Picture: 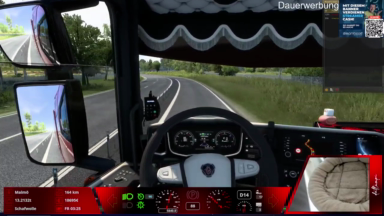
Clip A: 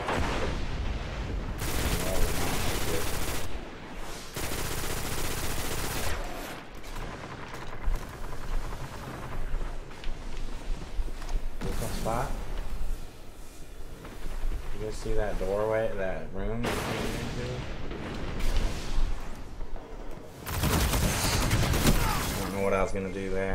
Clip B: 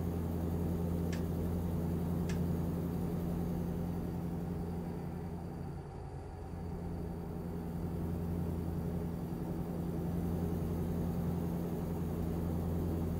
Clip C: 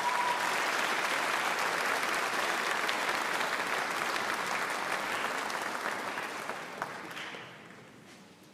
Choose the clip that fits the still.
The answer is B